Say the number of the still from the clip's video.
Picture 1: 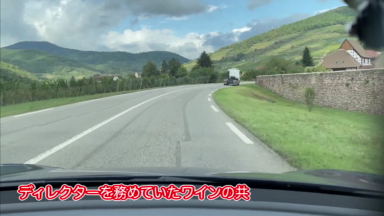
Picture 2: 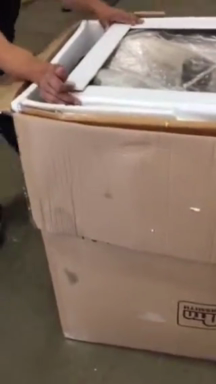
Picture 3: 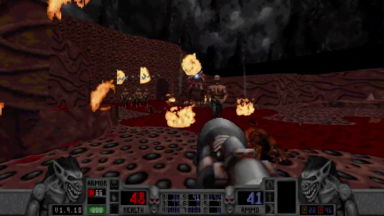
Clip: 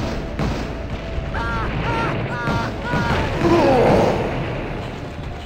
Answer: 3